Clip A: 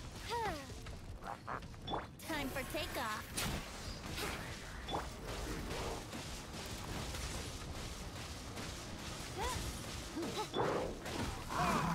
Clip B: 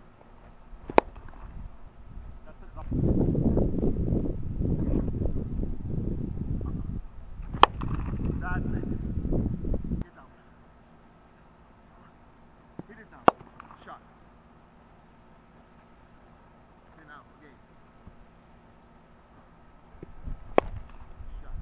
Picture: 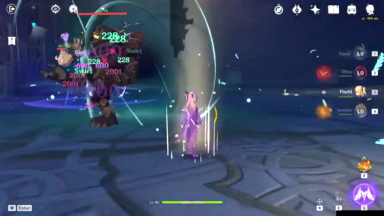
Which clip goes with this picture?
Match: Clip A